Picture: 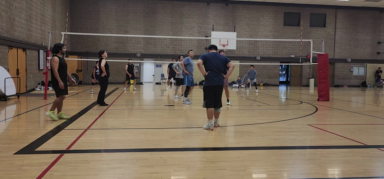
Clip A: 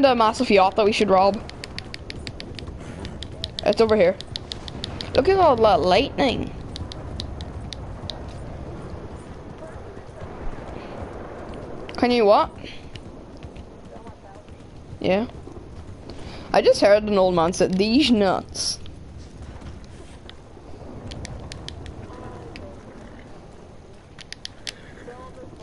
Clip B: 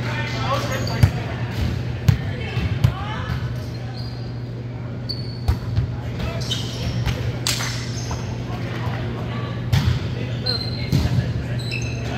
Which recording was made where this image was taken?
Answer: B